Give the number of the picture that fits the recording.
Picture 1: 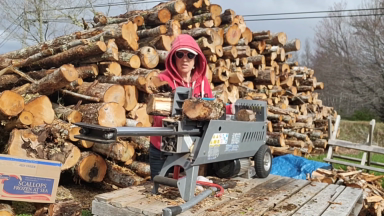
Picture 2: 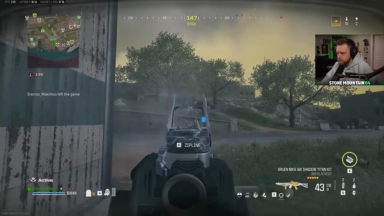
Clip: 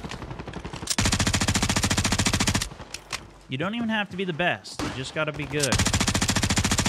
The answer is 2